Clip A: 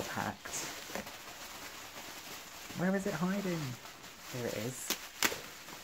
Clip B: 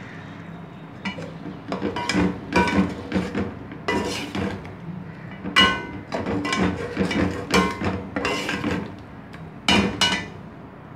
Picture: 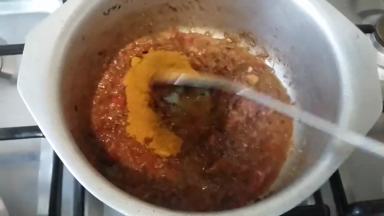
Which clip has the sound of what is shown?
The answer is B